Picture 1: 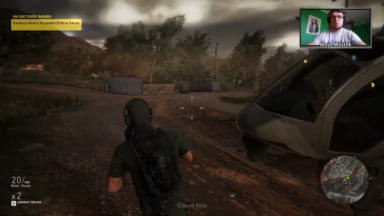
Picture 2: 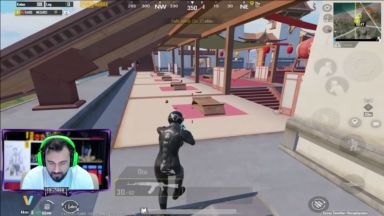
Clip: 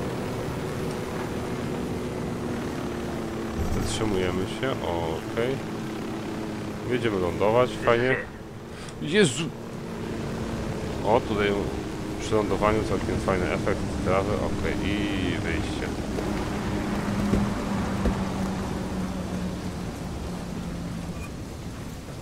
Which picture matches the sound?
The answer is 1